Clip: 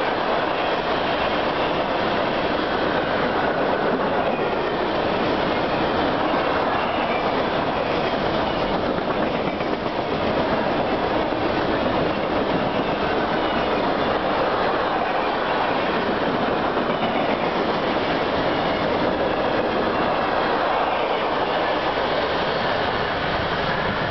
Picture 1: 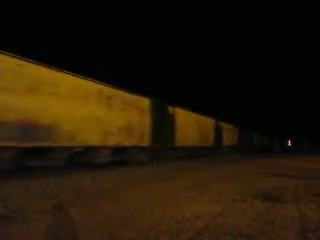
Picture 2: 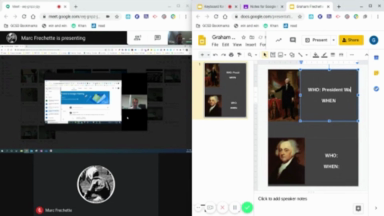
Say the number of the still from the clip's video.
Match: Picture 1